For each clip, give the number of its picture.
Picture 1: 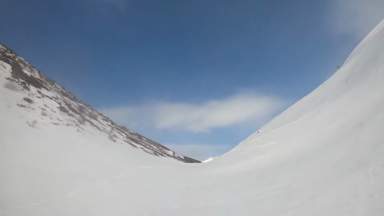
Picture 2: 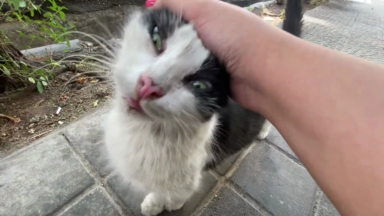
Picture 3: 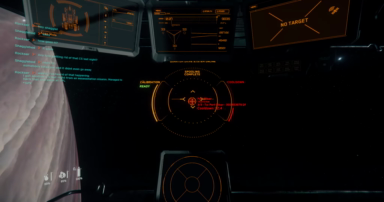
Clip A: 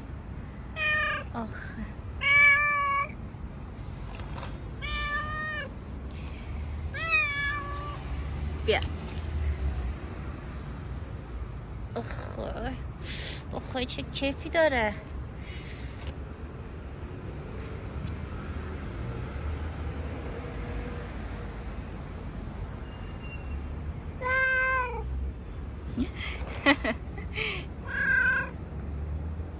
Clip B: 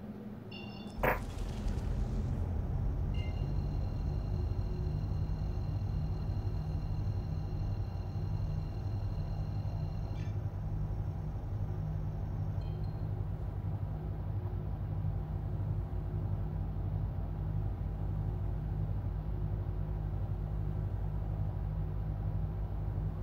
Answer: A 2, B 3